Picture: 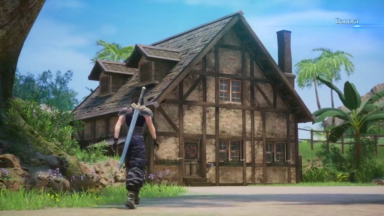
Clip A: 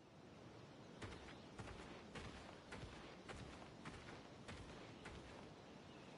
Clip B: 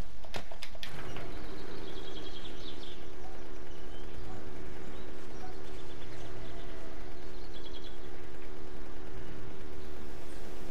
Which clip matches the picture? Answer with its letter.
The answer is A